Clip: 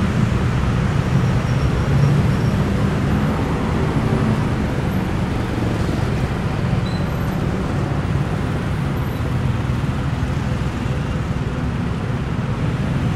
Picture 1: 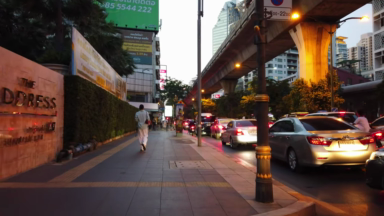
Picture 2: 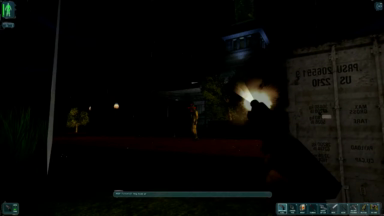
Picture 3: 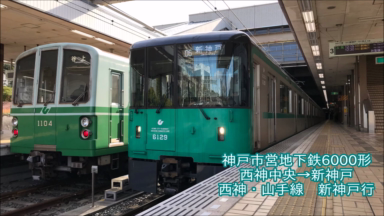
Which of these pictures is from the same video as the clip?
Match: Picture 1